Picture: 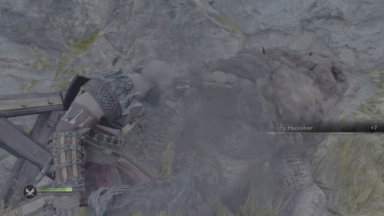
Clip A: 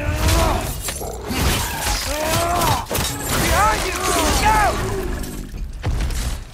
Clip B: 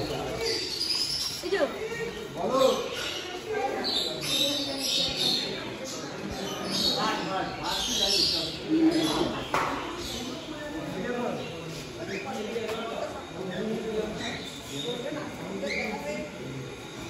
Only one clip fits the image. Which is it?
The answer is A